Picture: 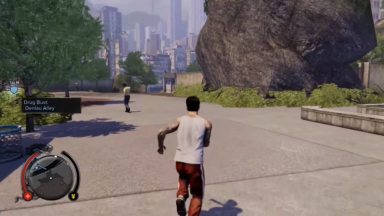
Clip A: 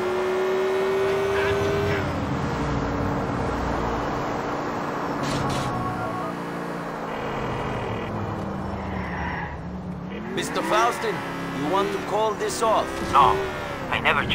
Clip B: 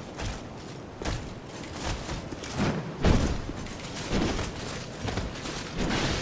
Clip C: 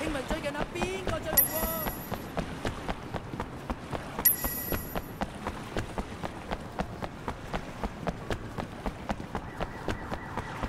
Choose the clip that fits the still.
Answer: C